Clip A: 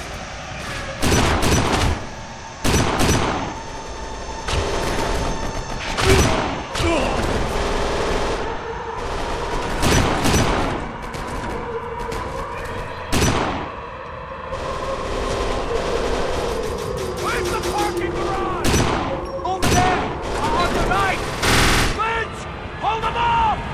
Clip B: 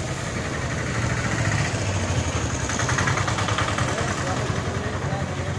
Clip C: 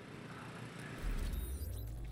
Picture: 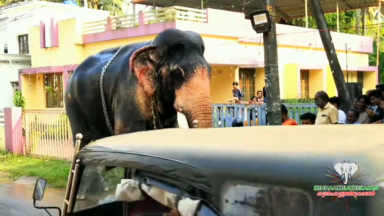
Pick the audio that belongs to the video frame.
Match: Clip B